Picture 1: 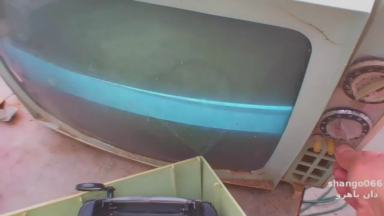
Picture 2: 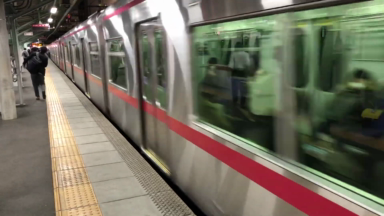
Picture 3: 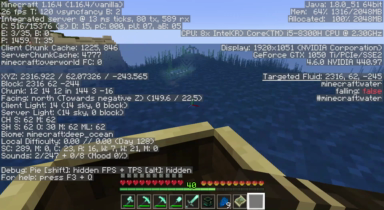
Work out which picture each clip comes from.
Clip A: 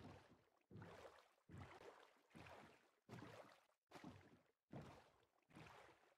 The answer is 3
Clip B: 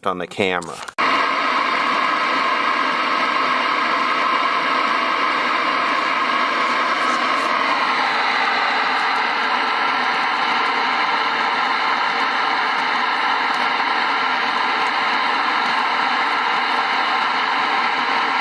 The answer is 1